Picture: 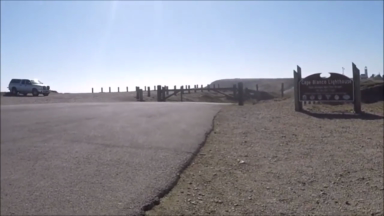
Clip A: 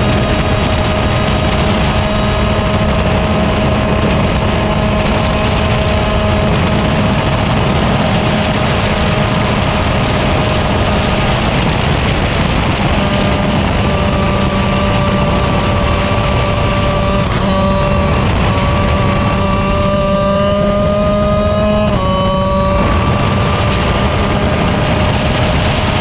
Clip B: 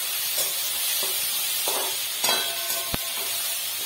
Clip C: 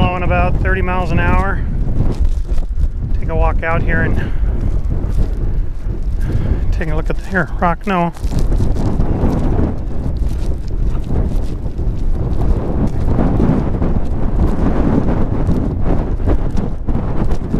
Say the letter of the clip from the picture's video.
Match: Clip C